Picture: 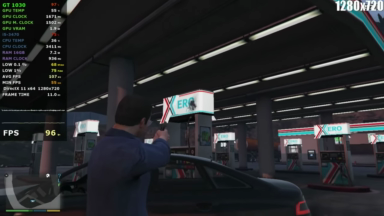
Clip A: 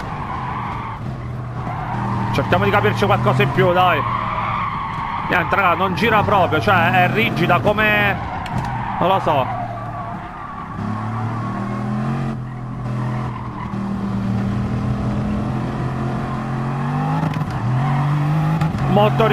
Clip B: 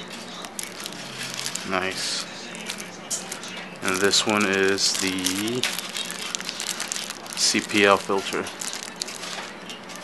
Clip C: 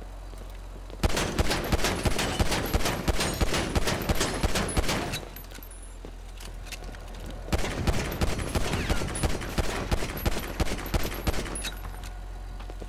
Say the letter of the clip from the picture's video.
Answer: C